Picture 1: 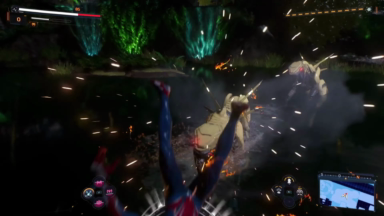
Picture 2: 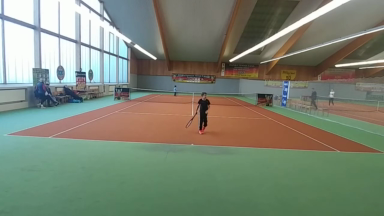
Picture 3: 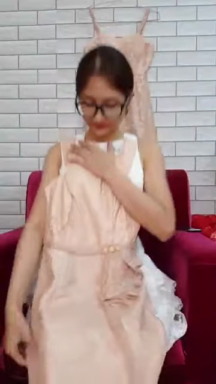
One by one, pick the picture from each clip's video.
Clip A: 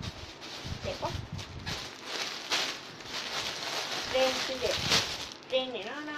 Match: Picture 3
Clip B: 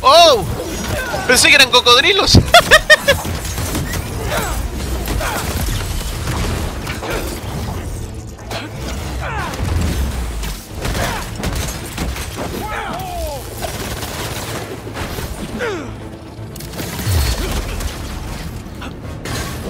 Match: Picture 1